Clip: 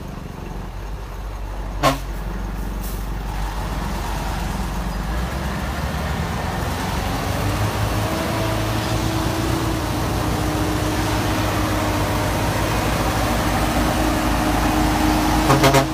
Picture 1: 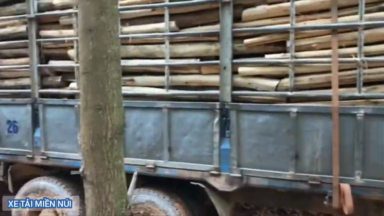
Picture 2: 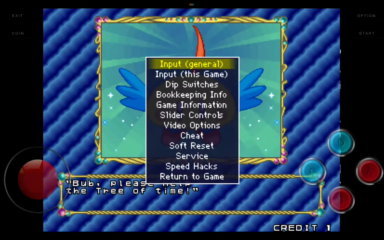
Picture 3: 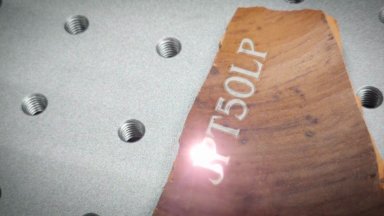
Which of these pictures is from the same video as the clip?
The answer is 1